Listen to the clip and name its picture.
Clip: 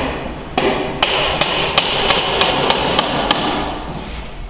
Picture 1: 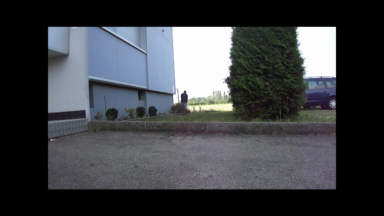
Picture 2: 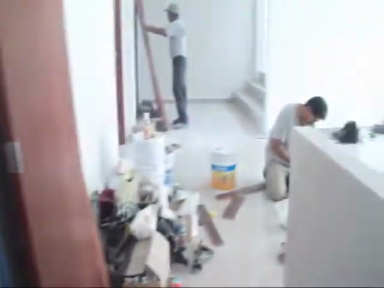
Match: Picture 2